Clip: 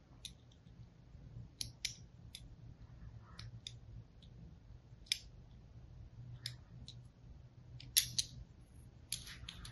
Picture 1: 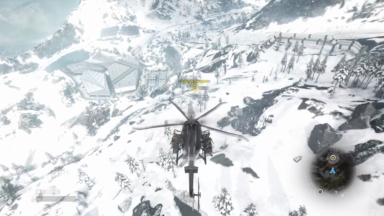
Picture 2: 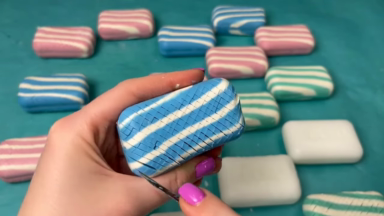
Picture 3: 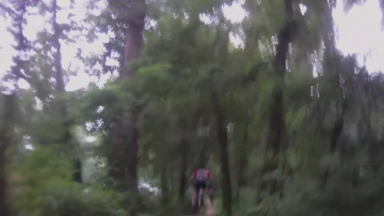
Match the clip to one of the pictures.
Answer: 2